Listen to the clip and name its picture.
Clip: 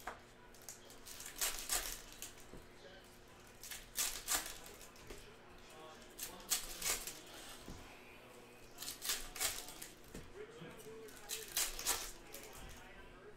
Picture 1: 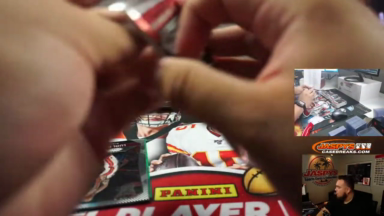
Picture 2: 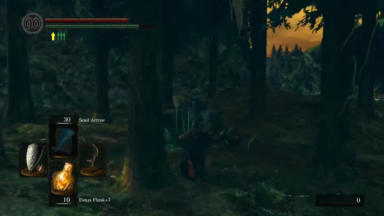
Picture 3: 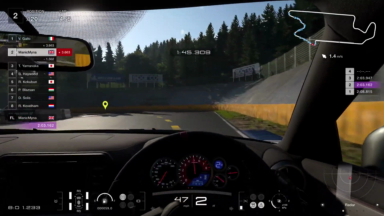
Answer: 1